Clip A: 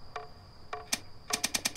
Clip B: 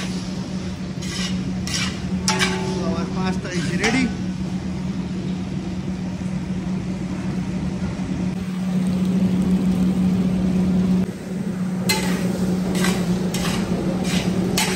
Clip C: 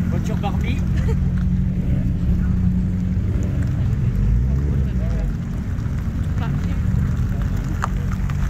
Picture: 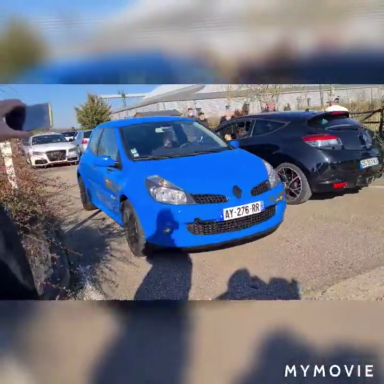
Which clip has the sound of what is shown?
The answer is C